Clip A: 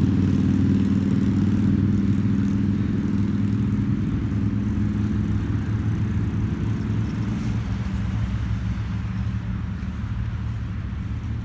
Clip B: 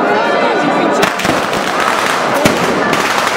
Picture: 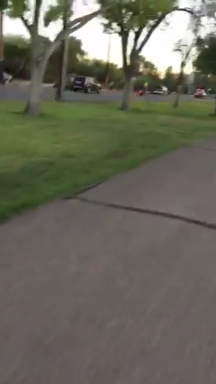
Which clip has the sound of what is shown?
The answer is A